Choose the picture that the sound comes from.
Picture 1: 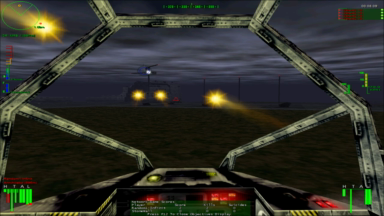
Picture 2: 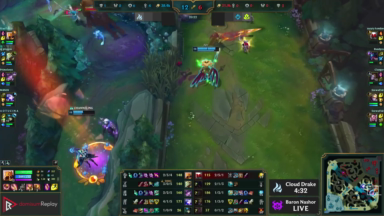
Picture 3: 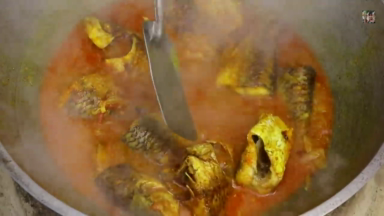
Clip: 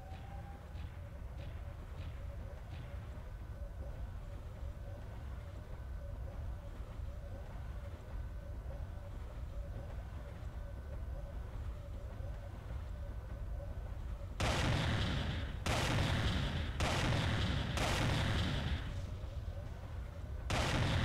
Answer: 1